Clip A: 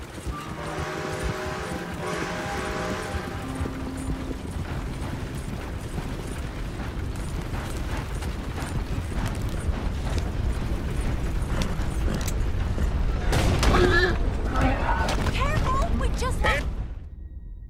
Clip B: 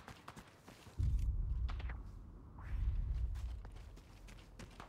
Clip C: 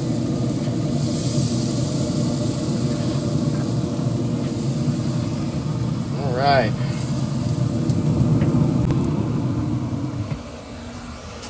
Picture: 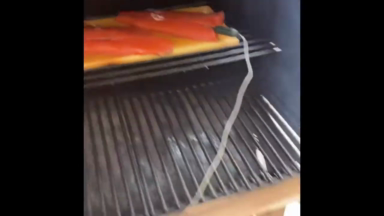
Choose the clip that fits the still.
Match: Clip C